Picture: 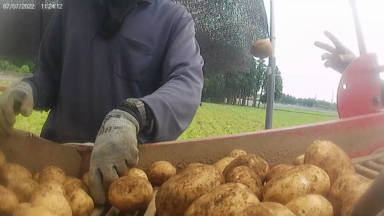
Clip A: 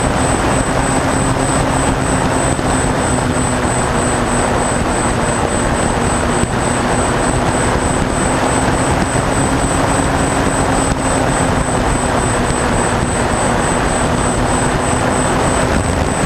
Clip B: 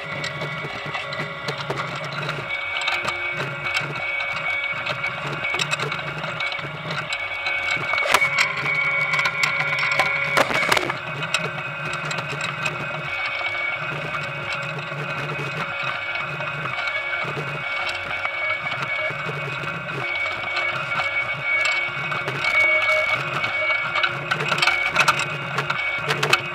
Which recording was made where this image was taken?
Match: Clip B